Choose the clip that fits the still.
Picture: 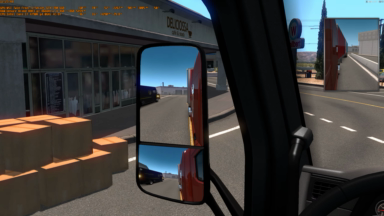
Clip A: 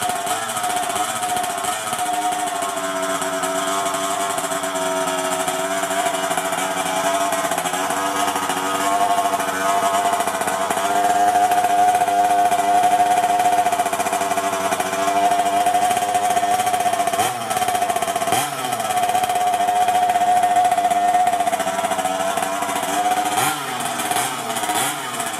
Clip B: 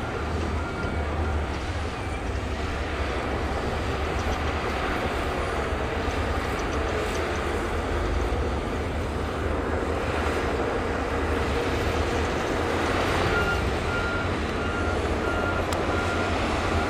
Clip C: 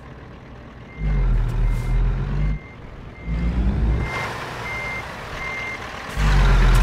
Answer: C